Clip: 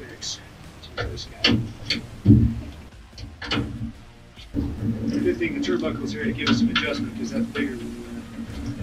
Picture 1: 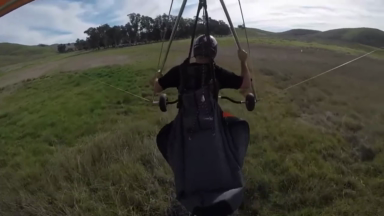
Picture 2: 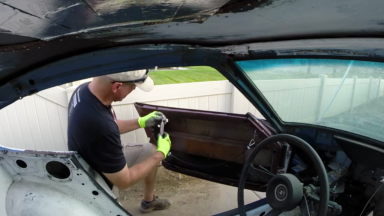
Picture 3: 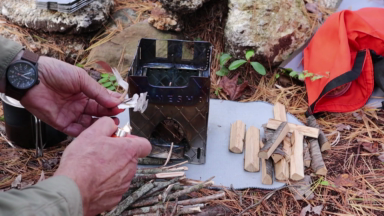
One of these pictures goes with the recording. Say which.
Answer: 2